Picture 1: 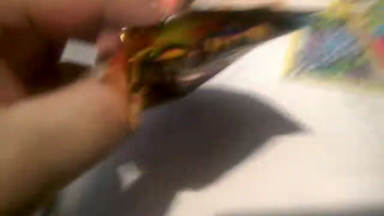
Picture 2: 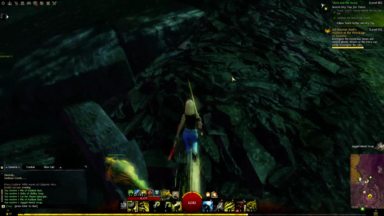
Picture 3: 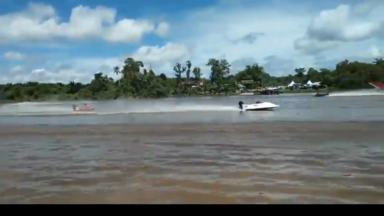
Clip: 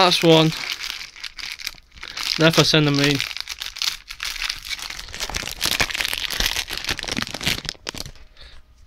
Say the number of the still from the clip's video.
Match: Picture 1